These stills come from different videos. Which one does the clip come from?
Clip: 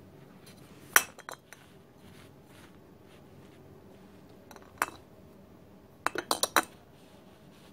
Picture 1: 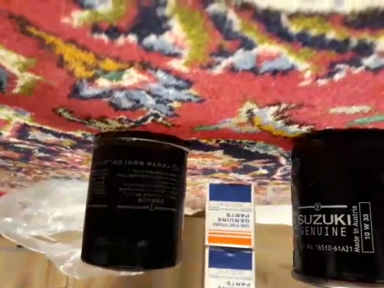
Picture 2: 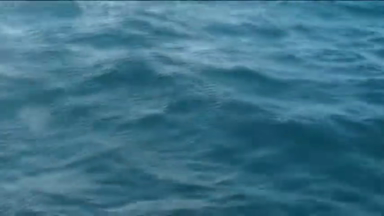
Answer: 1